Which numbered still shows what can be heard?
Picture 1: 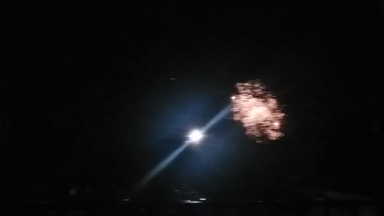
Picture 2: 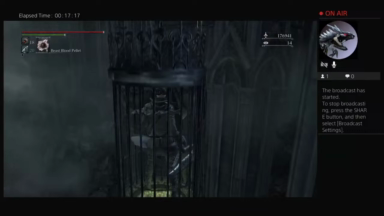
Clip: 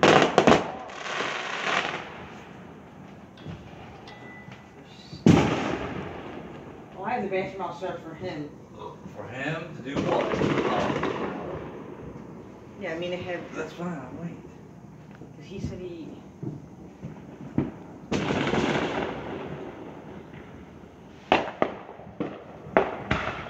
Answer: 1